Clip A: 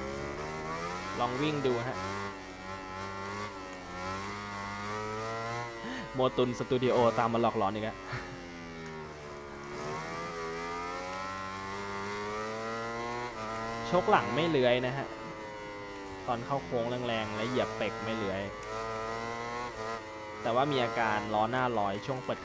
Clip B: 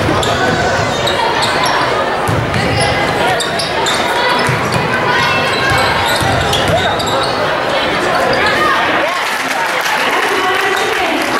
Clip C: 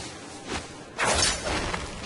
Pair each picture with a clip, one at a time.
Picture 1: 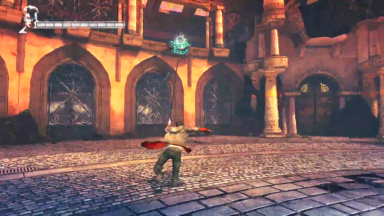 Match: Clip C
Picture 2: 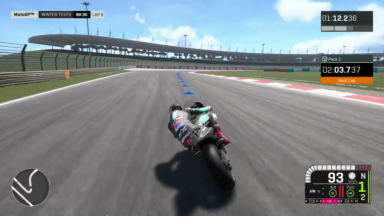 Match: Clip A